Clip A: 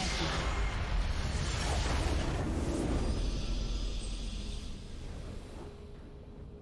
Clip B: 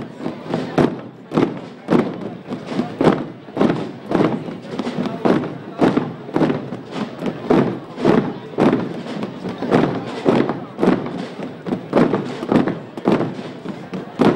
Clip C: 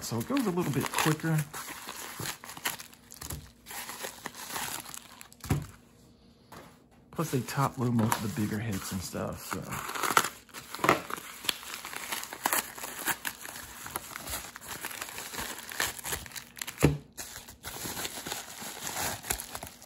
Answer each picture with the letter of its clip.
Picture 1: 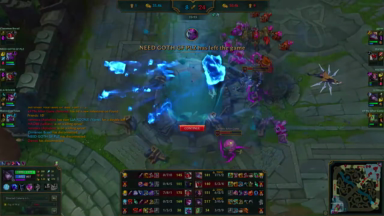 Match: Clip A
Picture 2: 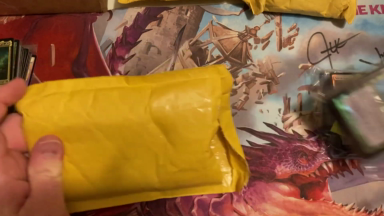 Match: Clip C